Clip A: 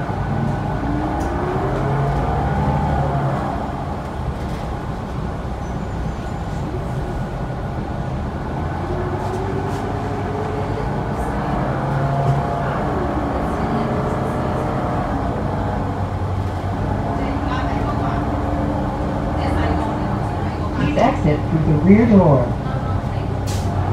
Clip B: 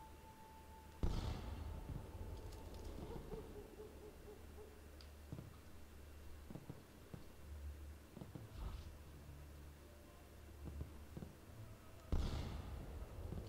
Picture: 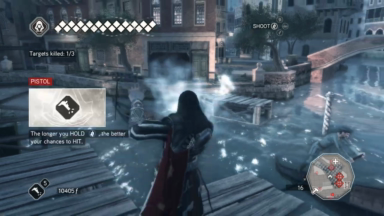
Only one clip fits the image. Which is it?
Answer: B